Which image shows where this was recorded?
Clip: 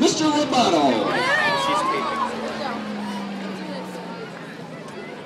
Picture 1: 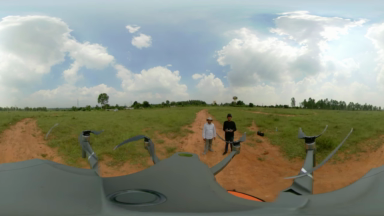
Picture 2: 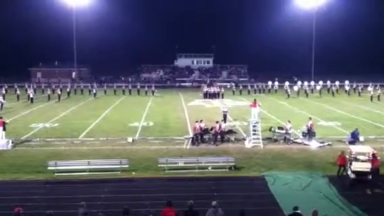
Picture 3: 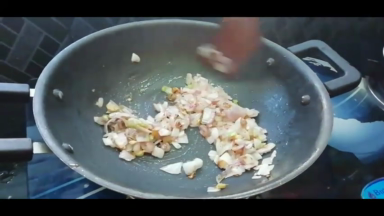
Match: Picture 2